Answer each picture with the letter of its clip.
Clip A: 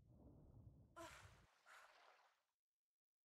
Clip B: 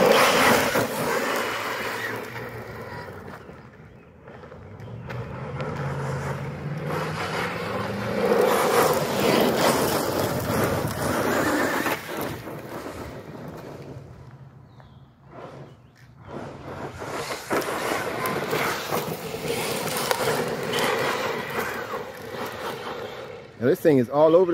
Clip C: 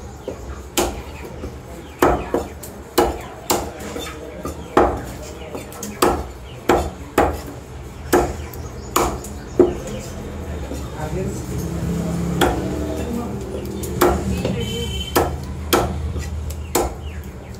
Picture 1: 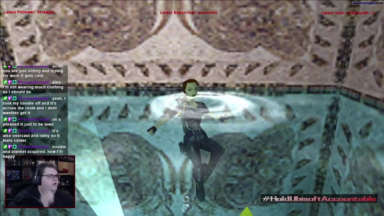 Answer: A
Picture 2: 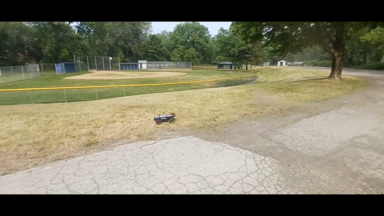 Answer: B